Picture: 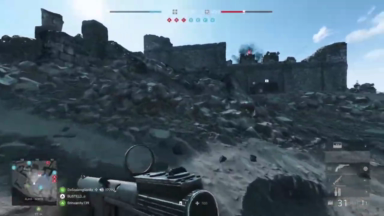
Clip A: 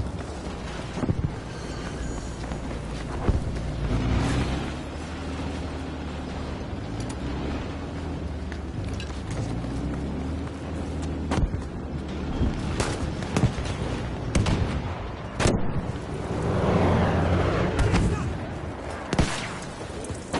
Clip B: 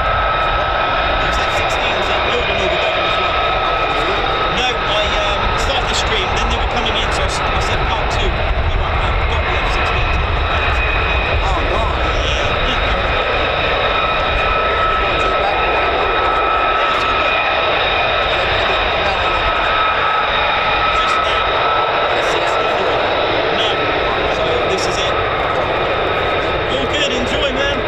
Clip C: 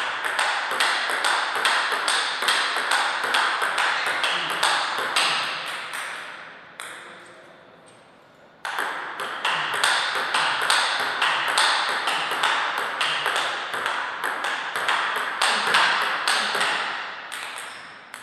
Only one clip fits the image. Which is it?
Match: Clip A